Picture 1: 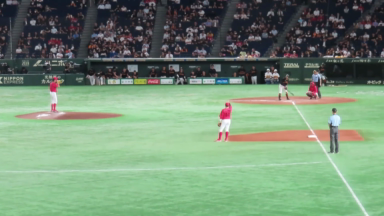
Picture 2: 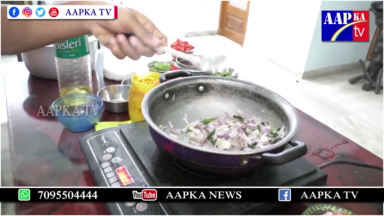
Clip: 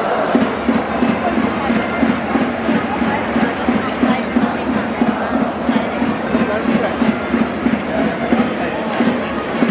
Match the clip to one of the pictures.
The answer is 1